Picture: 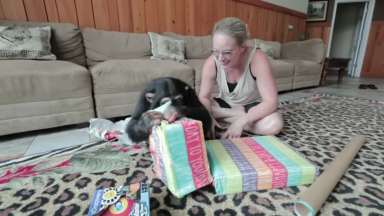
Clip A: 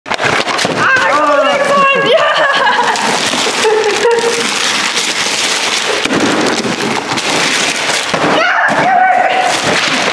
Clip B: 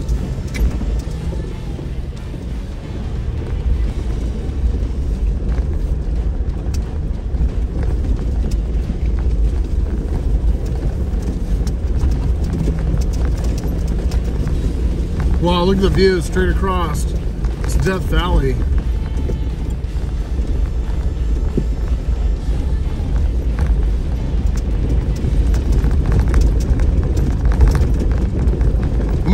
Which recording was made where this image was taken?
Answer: A